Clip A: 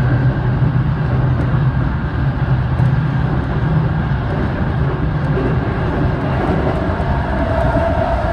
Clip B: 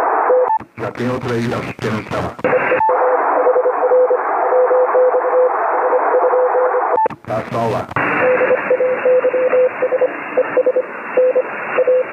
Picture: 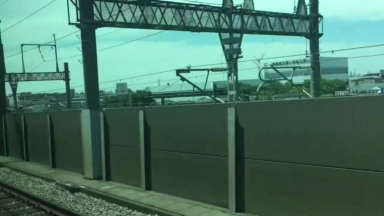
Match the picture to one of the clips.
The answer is A